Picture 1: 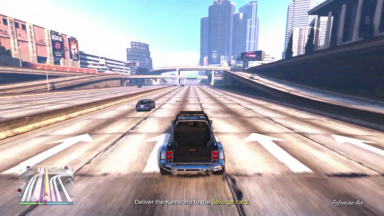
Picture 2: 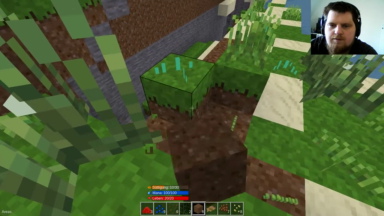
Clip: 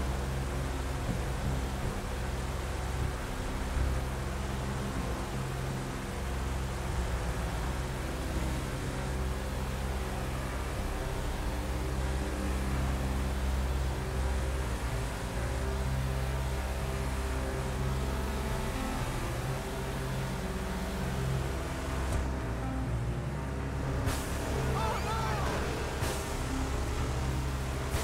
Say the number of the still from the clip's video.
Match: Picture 1